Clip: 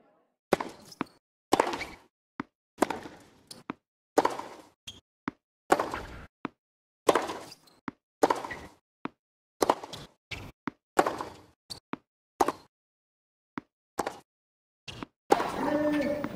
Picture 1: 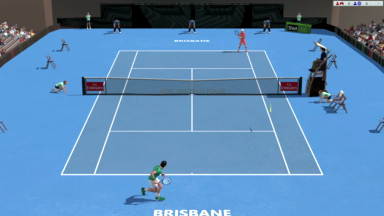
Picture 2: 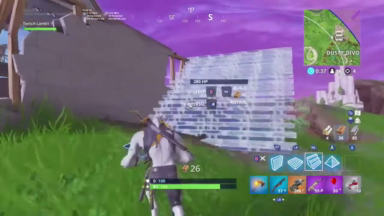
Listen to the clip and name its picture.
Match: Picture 1